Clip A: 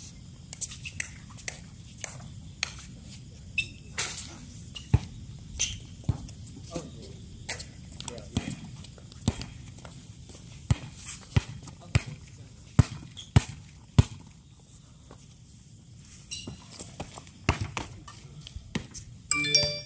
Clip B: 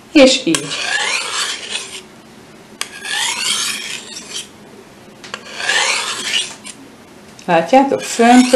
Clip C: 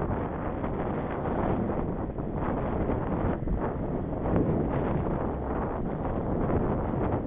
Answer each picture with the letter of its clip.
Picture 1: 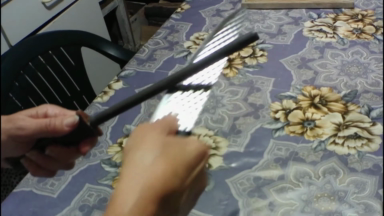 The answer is B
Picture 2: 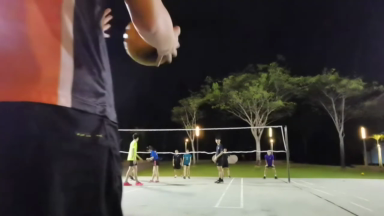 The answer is A